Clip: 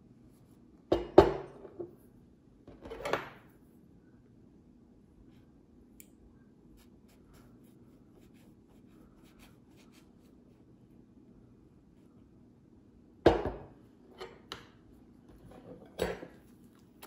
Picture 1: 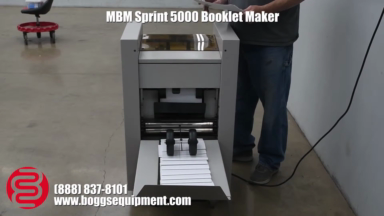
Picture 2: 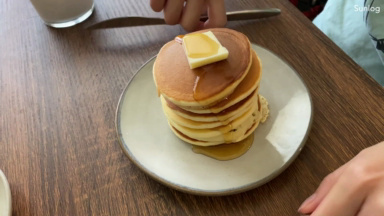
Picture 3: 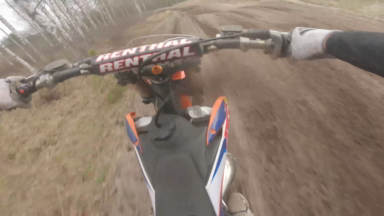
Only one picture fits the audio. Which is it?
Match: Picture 2